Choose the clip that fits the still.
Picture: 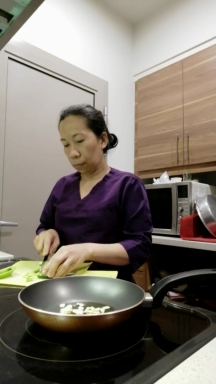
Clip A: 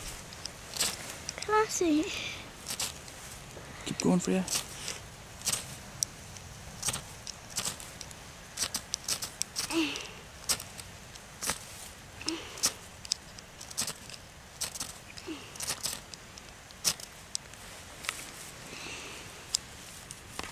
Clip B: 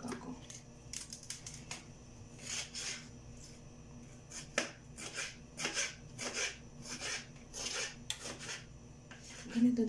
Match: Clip B